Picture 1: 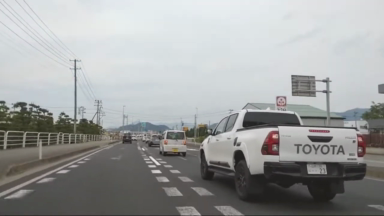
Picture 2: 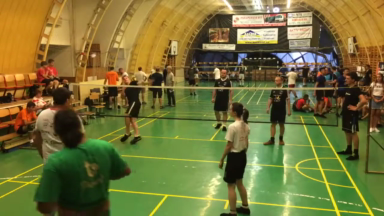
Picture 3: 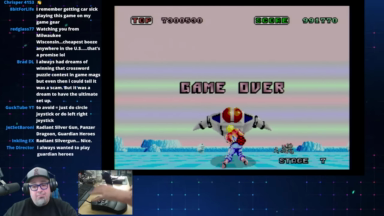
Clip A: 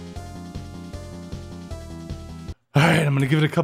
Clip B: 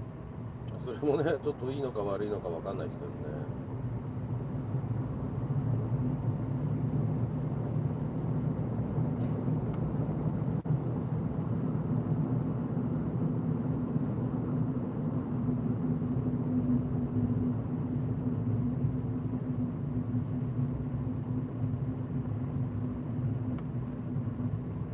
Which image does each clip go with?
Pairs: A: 3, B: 1